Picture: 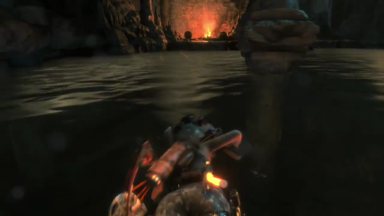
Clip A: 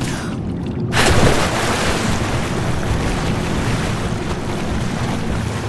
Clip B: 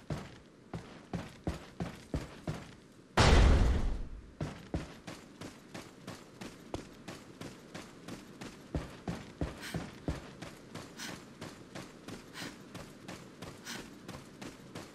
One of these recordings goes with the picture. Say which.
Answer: A